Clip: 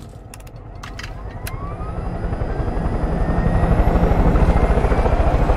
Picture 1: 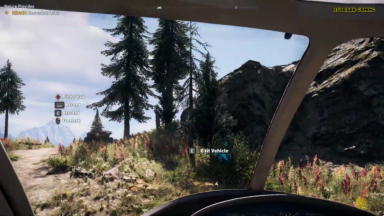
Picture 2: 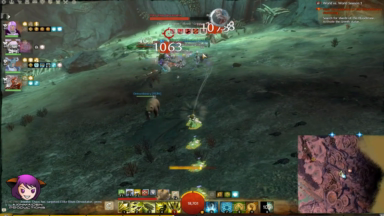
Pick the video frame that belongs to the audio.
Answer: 1